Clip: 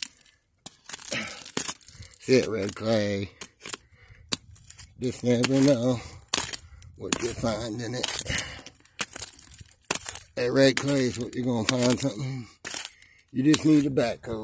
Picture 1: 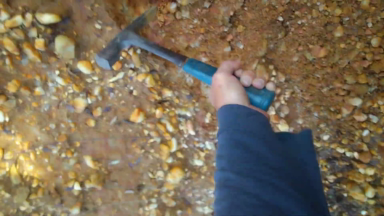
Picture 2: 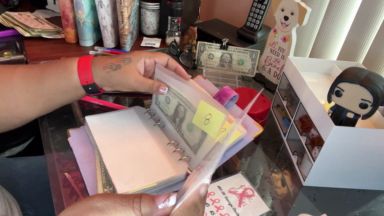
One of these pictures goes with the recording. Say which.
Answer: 1